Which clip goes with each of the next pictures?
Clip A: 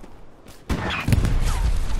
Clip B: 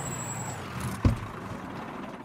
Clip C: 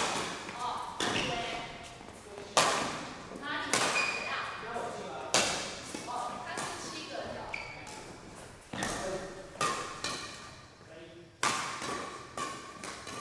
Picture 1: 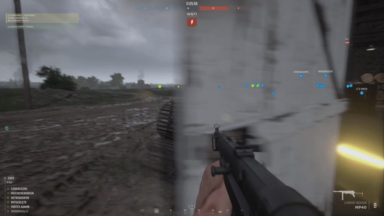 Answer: A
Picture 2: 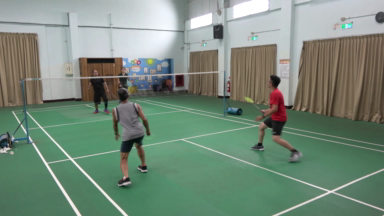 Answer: C